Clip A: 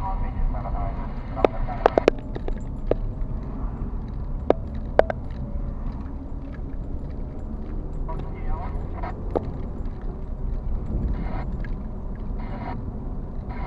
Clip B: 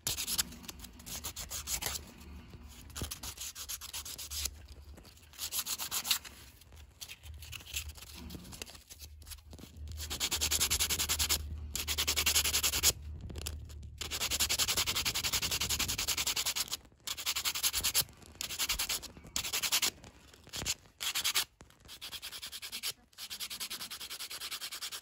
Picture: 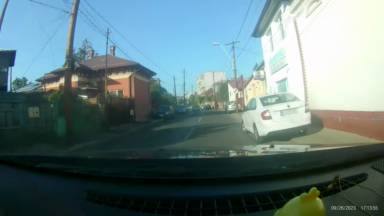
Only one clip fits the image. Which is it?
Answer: A